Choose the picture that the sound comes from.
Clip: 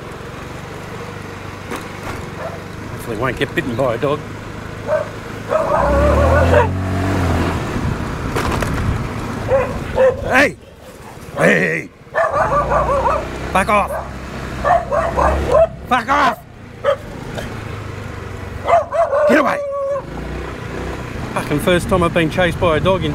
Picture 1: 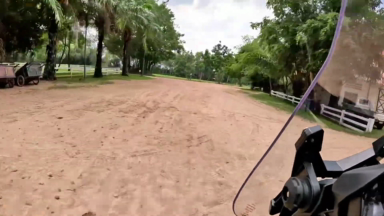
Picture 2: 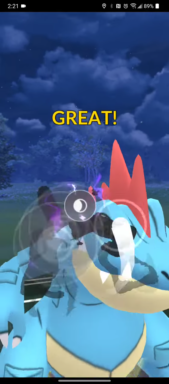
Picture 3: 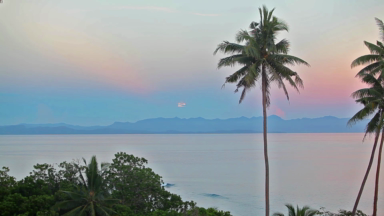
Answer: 1